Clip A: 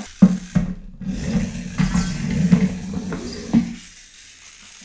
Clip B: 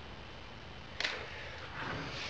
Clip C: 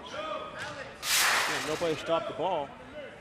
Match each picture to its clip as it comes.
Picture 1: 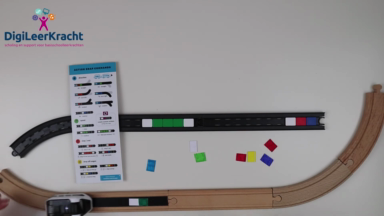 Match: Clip A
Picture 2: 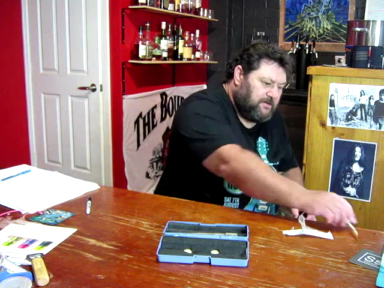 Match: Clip B